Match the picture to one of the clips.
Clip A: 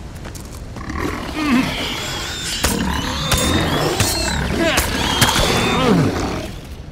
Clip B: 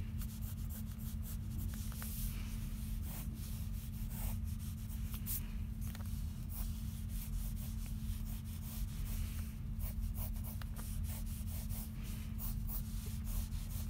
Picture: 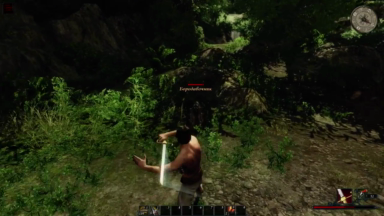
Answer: A